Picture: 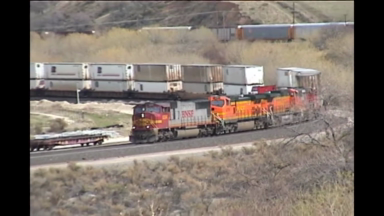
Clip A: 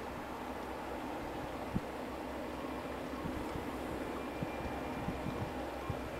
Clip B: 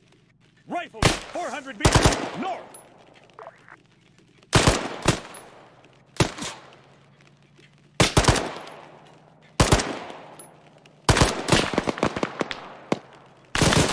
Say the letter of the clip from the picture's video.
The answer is A